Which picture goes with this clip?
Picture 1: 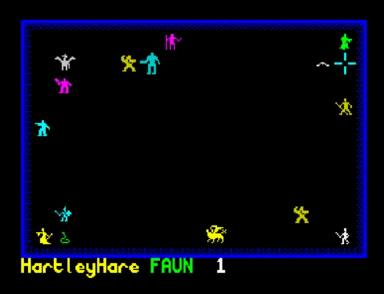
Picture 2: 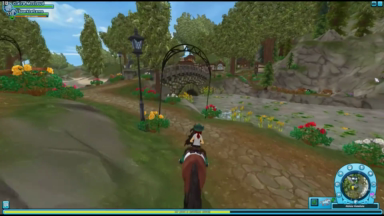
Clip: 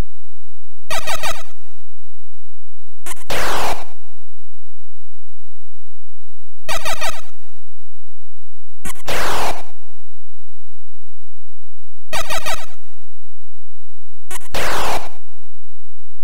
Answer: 1